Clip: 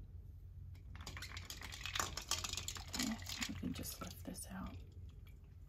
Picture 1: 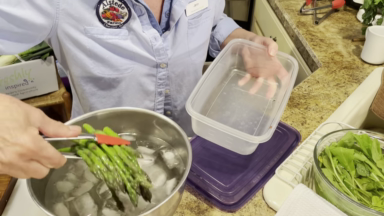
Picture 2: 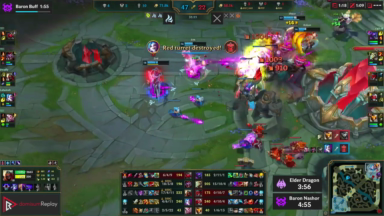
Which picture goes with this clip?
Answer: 1